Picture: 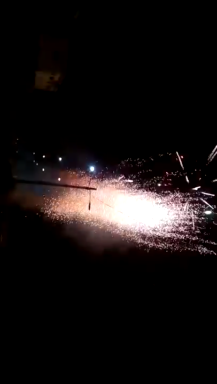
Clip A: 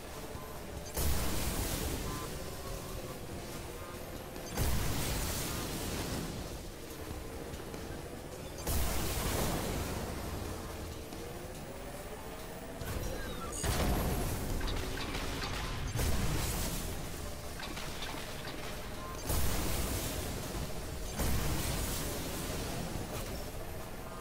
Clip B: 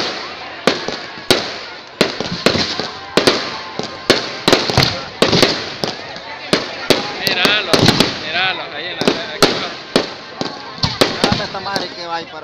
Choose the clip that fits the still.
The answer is B